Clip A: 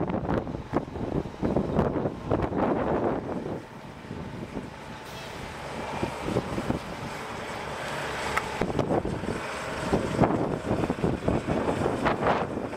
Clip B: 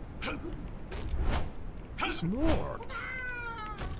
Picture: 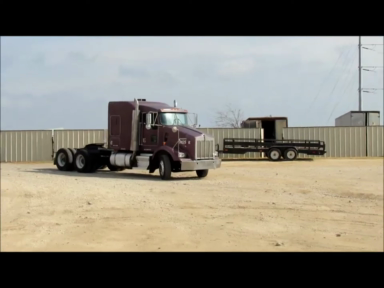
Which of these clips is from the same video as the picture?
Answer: A